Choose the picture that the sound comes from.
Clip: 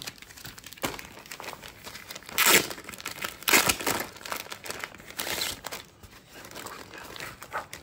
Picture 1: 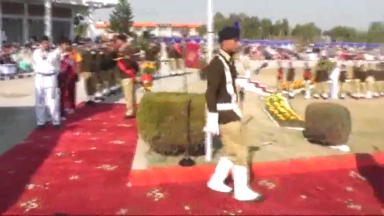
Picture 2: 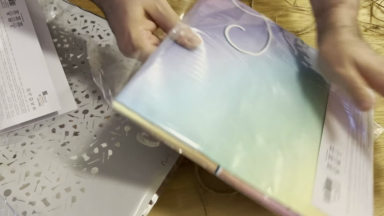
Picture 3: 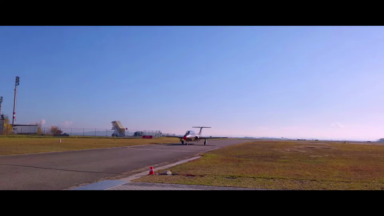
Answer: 2